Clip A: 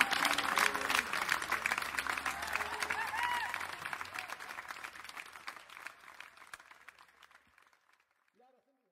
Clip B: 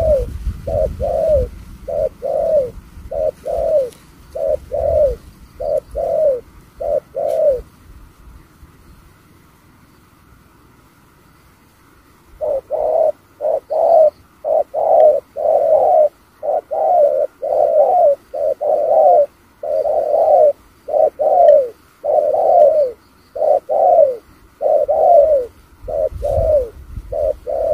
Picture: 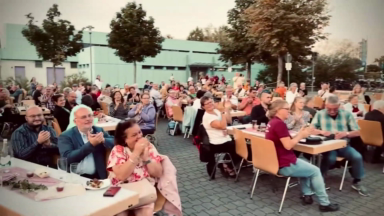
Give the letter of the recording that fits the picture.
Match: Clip A